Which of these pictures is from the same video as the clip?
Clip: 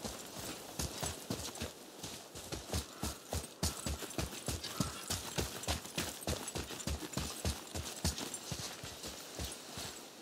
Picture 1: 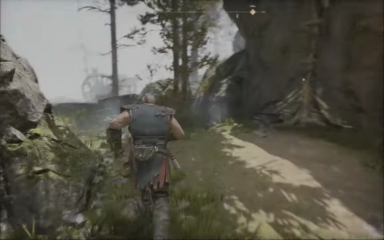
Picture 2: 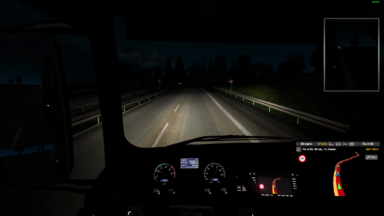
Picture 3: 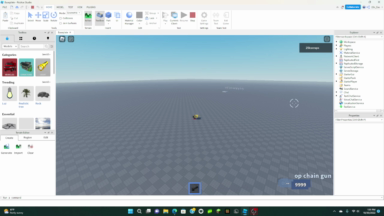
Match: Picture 1